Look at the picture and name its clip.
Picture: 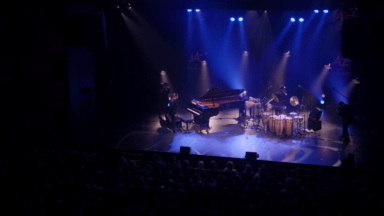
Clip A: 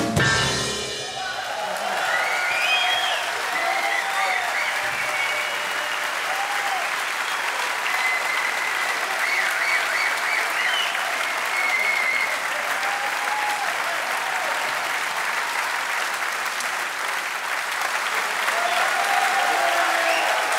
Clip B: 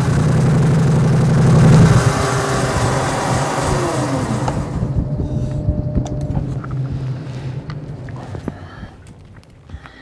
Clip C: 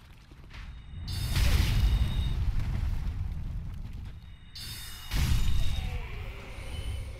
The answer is A